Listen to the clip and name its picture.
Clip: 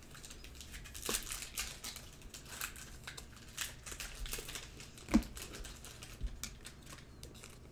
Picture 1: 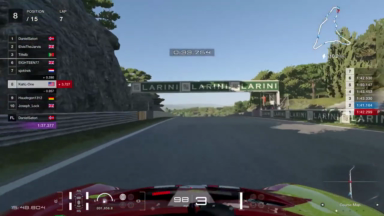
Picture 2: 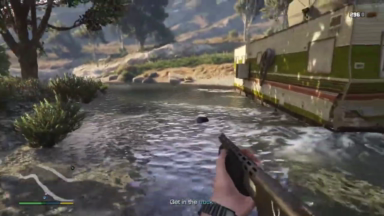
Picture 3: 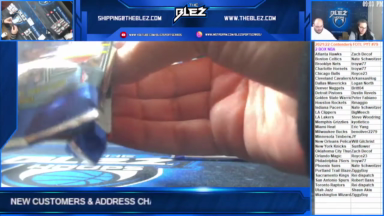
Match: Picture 3